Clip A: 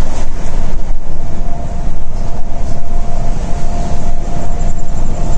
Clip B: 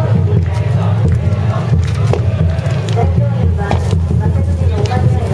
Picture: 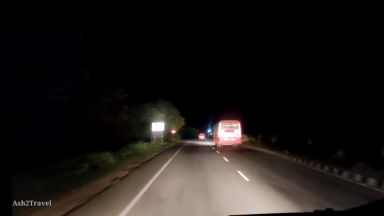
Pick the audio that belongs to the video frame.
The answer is A